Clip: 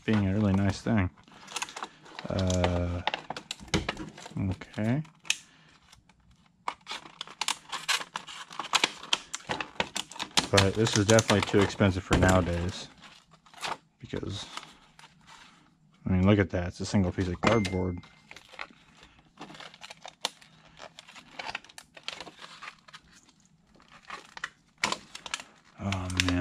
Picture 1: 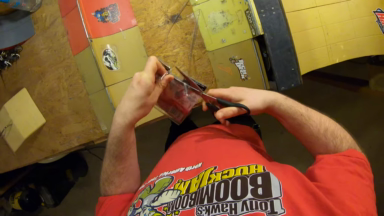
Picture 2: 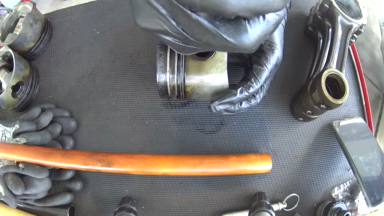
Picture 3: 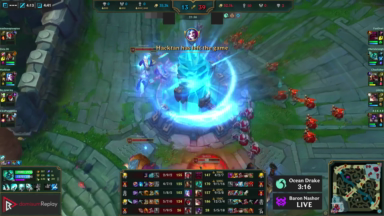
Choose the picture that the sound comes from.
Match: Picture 1